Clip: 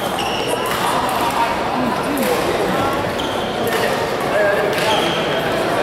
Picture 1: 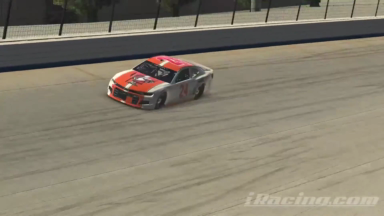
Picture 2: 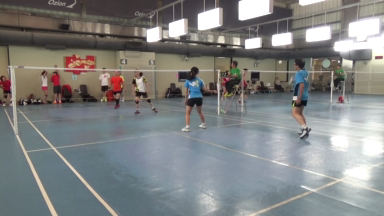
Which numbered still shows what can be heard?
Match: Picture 2